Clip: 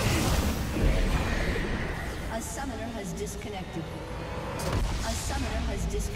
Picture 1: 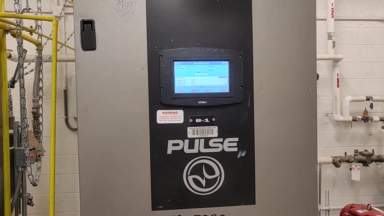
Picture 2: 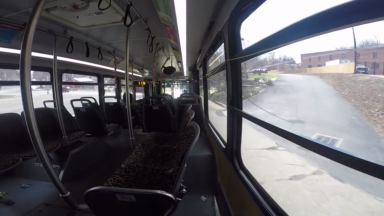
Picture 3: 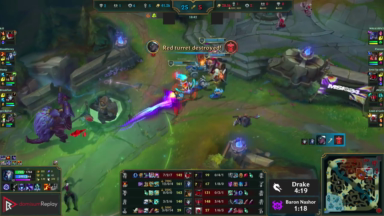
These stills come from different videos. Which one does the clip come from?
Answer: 3